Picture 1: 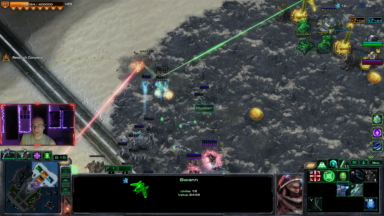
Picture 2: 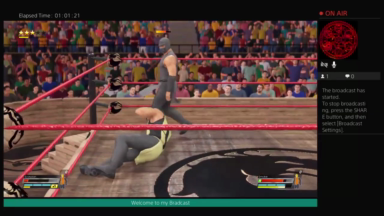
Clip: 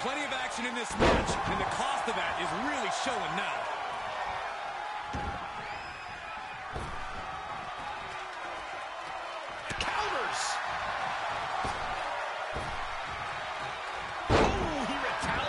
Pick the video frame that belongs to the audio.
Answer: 2